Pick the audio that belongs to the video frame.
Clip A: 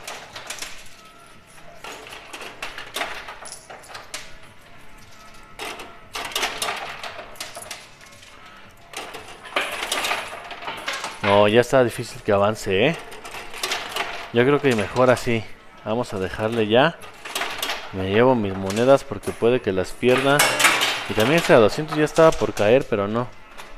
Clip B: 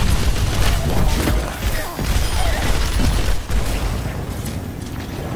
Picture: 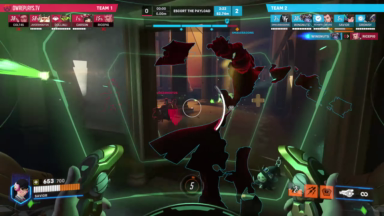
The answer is B